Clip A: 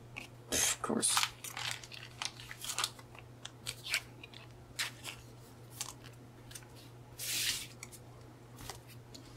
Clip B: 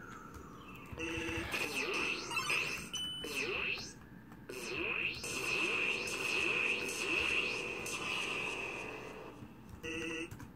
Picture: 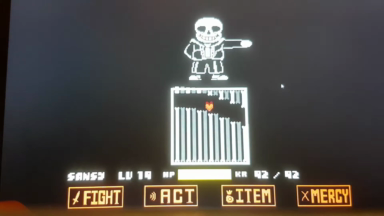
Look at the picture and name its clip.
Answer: B